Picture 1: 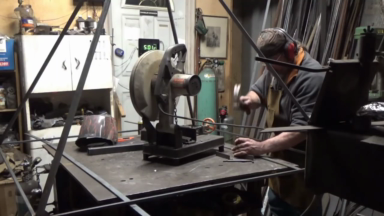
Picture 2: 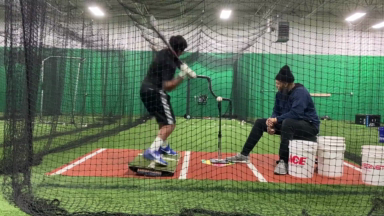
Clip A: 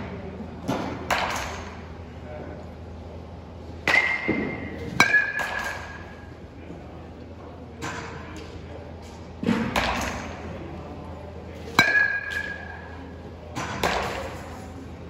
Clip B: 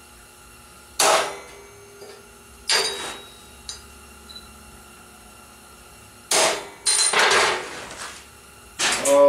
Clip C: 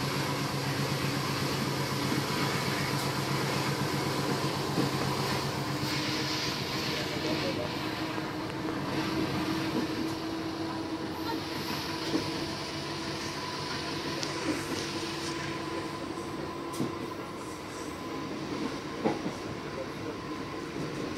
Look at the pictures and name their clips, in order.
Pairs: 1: B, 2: A